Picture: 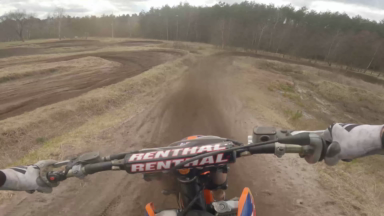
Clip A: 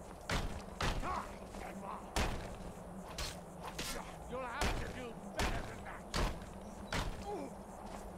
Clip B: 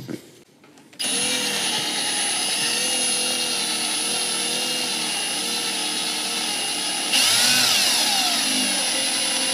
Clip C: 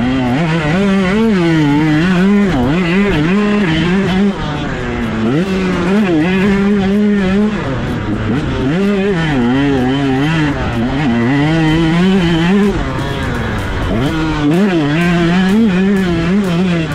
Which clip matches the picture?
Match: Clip C